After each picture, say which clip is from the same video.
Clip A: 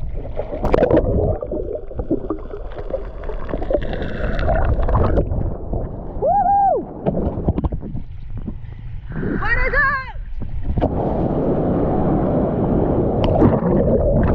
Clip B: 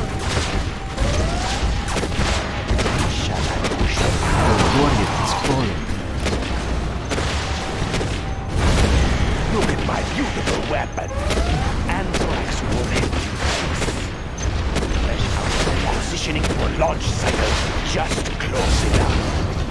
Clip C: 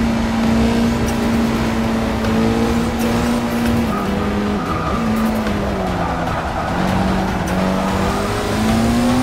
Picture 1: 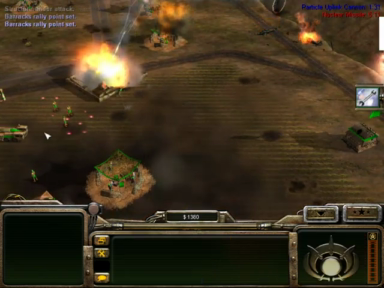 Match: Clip B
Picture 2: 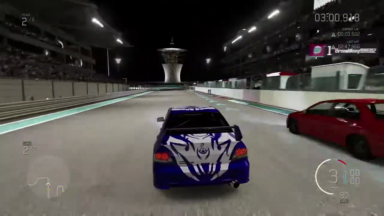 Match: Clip C